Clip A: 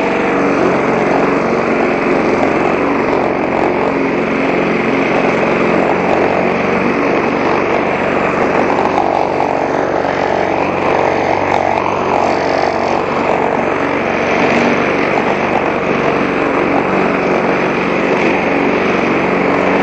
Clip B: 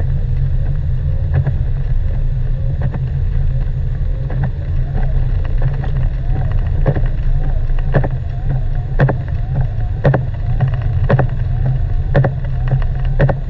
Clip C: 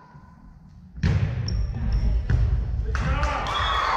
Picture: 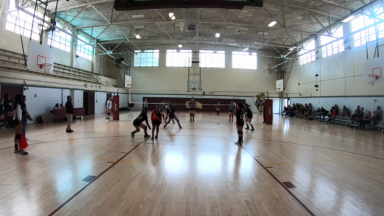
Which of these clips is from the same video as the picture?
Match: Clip C